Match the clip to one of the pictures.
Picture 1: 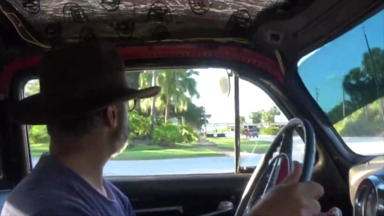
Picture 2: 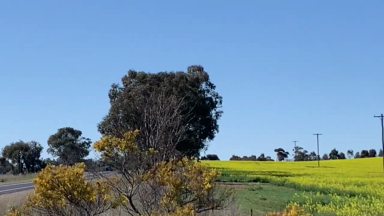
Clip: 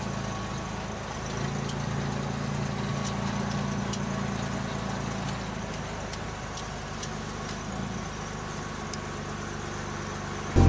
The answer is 1